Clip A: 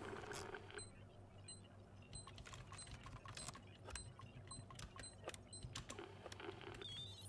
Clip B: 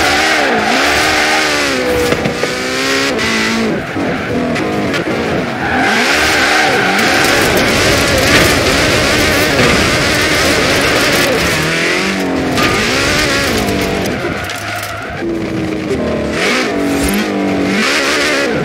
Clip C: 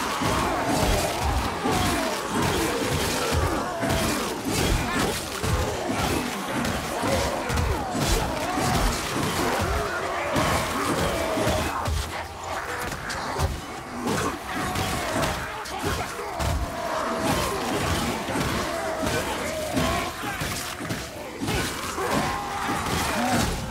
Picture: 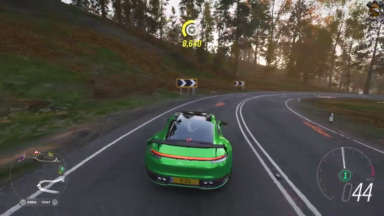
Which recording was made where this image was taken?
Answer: B